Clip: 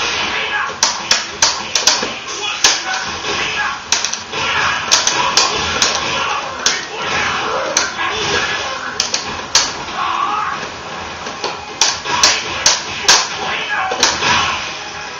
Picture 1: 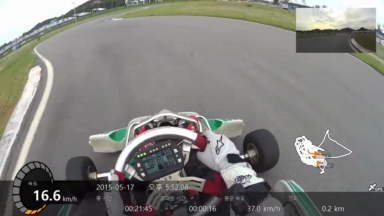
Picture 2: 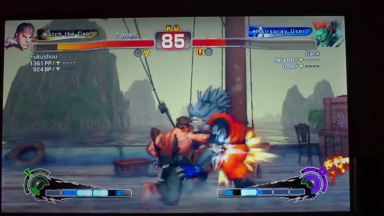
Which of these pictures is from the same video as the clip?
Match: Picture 2